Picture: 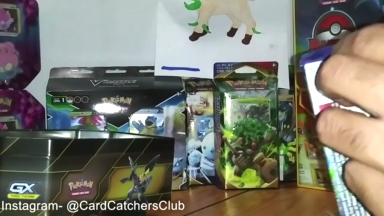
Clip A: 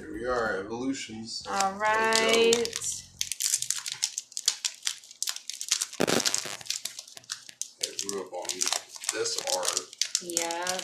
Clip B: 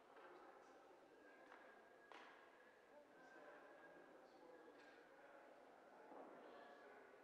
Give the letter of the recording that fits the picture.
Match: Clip A